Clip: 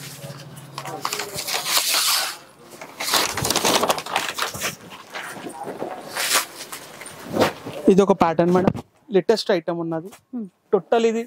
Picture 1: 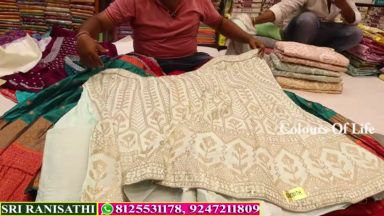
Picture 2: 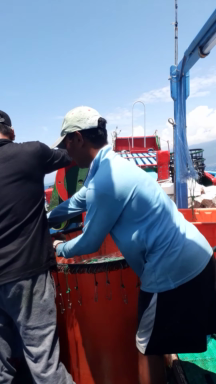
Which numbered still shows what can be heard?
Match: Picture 1